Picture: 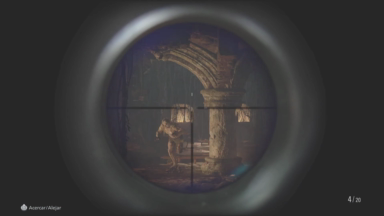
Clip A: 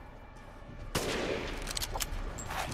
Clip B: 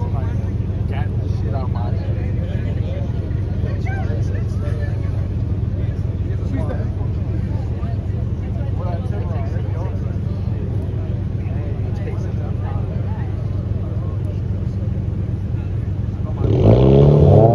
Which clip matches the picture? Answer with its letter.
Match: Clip A